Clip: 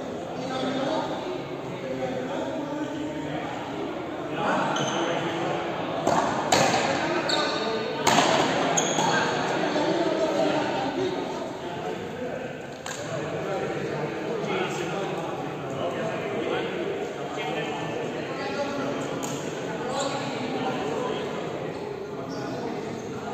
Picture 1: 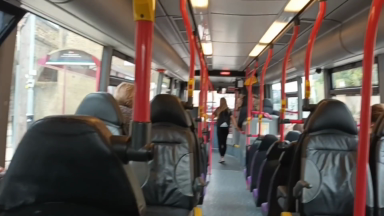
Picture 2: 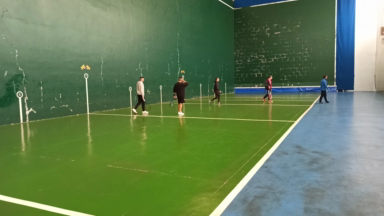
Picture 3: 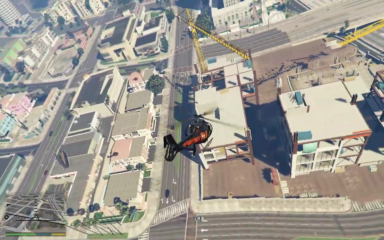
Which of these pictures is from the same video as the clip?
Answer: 2